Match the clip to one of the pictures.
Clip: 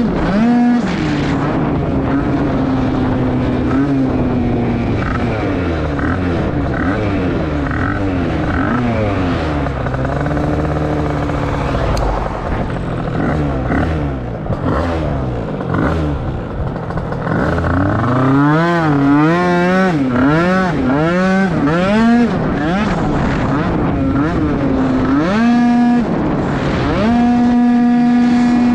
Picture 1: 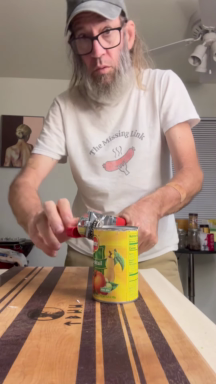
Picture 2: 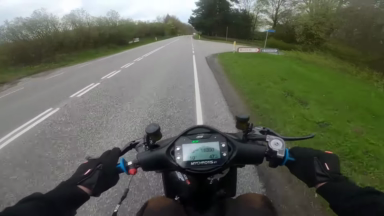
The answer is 2